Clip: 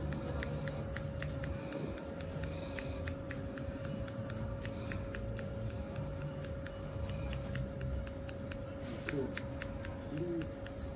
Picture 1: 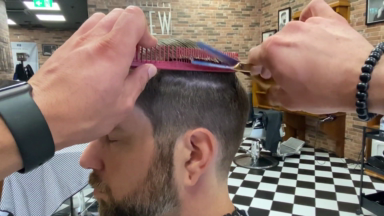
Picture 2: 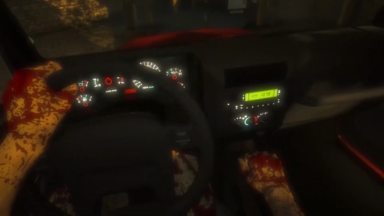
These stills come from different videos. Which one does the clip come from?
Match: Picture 1